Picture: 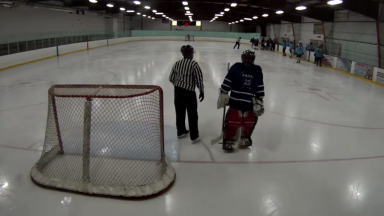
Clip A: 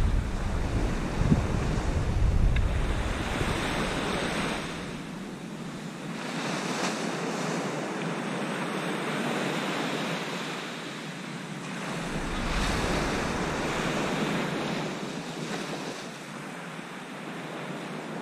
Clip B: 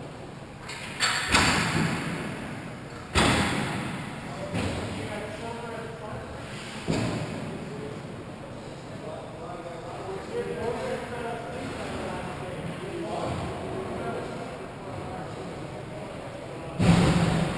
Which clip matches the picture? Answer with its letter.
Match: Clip B